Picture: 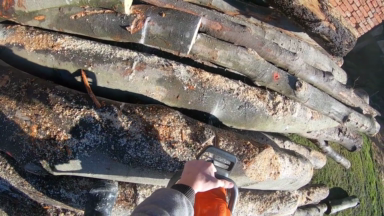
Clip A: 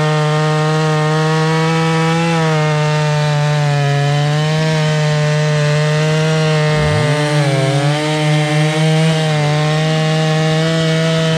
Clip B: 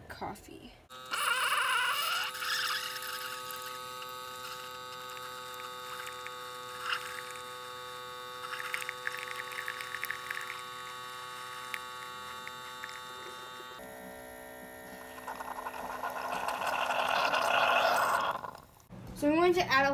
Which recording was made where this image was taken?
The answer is A